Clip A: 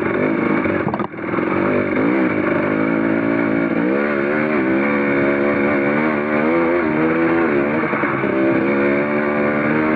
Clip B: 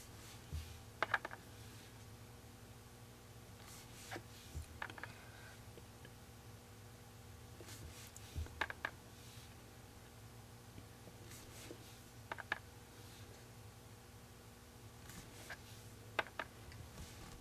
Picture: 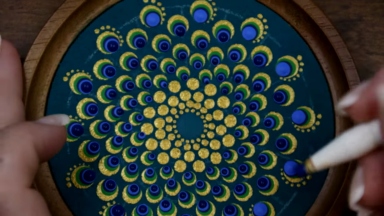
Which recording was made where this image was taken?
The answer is B